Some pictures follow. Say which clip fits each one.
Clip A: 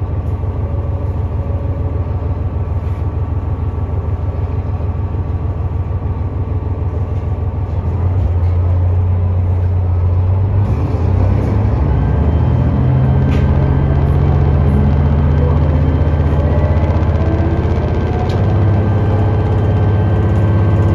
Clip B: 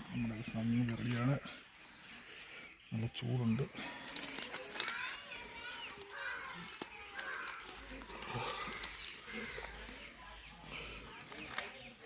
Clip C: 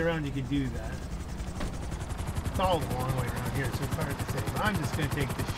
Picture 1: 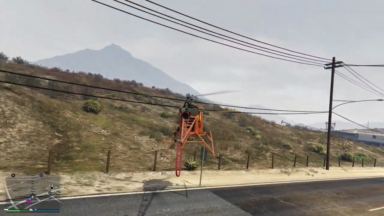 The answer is C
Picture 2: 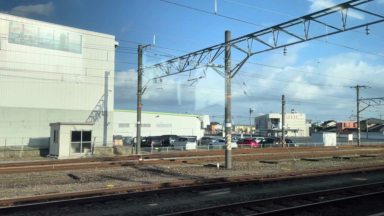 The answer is A